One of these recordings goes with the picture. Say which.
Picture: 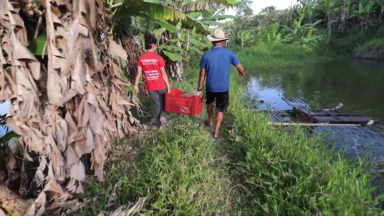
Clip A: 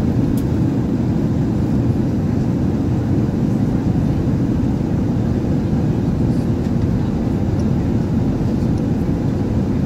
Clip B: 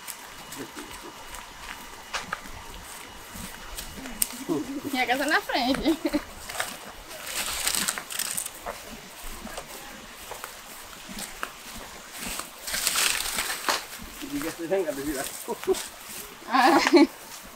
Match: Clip B